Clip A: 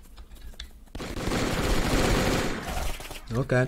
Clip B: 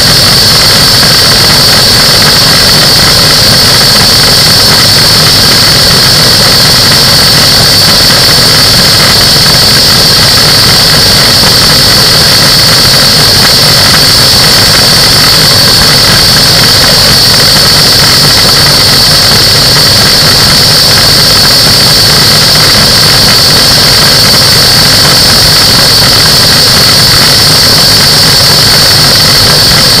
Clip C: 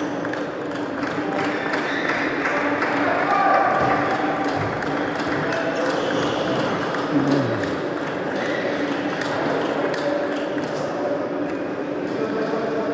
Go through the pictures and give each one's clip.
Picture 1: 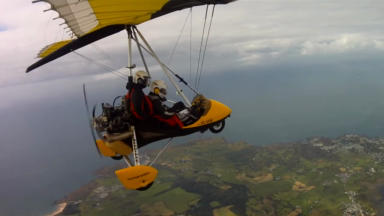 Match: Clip B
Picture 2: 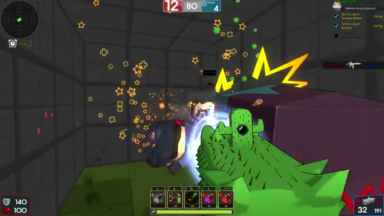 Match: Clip A